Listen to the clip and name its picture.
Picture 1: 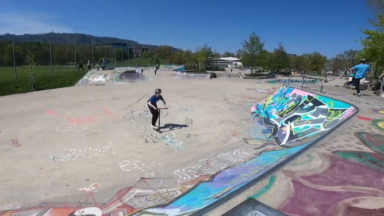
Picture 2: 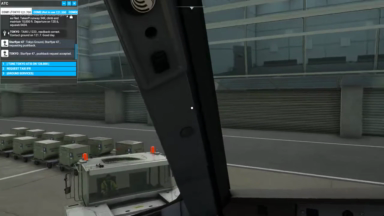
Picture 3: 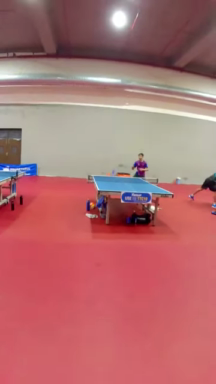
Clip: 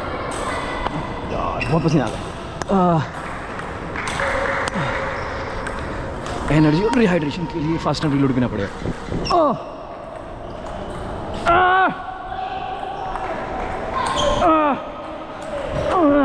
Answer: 3